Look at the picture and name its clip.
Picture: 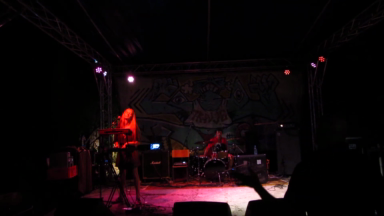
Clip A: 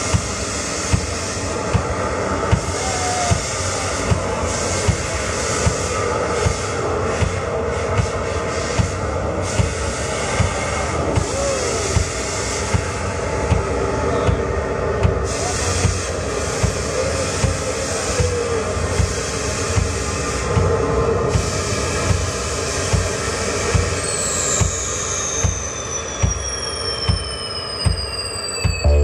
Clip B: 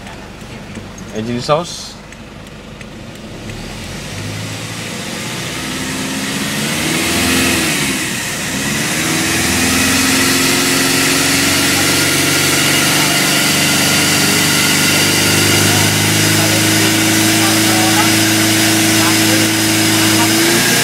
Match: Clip A